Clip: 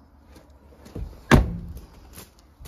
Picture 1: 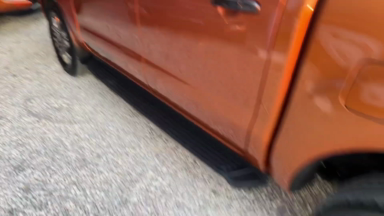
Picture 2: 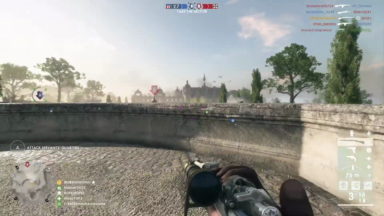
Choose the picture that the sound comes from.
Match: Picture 1